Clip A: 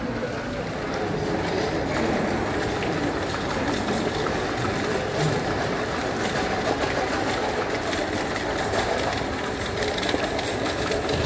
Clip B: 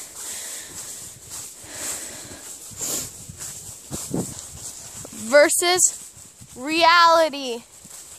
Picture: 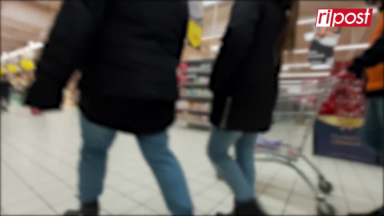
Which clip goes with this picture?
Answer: A